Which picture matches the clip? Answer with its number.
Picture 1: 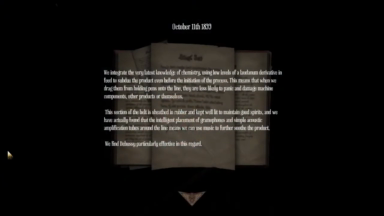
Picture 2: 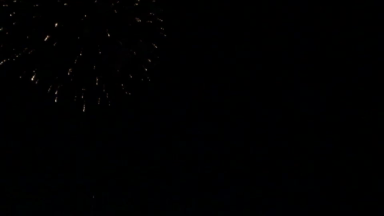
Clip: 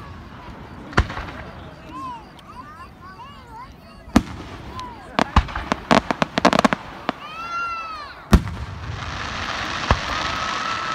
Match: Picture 2